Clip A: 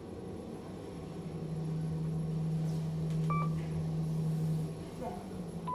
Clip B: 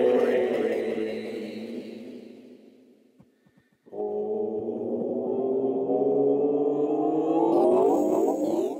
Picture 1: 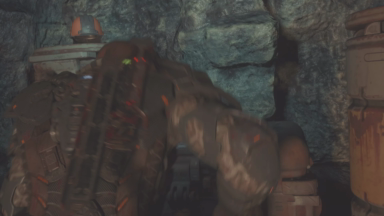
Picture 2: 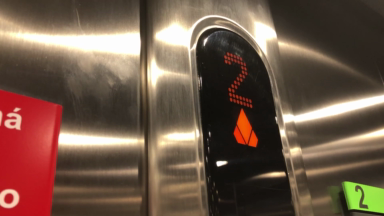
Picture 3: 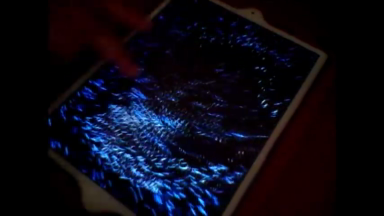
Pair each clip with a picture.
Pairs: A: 2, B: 3